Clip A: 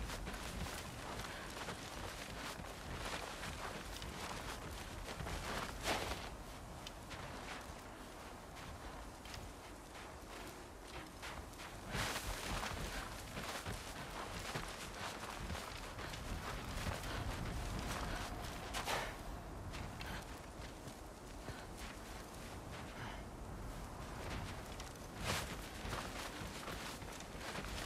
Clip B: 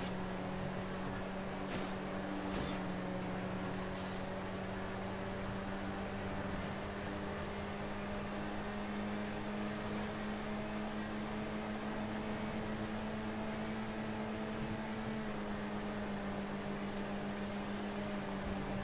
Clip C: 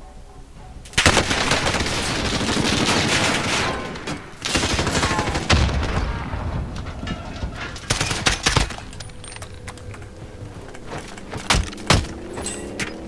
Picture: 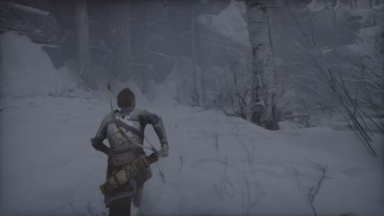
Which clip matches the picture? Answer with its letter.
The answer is A